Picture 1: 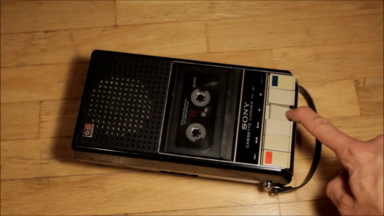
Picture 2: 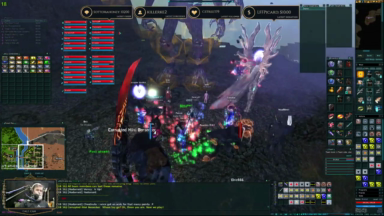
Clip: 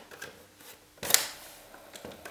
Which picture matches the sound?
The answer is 1